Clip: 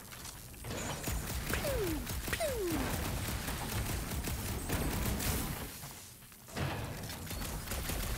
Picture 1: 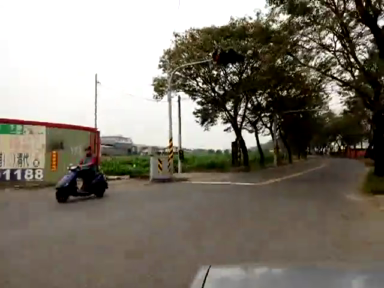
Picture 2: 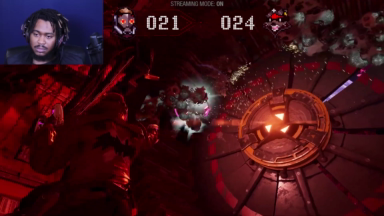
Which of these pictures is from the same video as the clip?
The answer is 2